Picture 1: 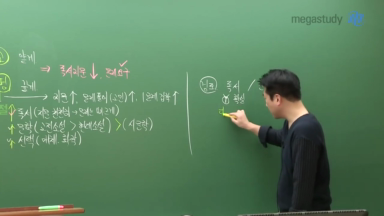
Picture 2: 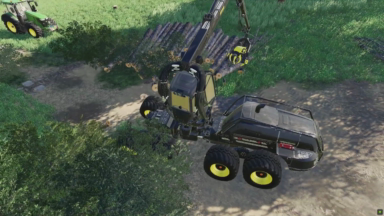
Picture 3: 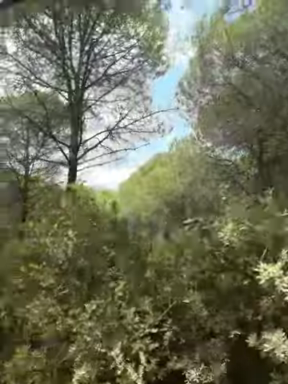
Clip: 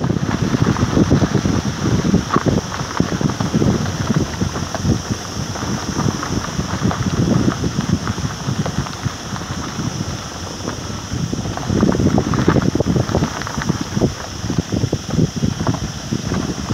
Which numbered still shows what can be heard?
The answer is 3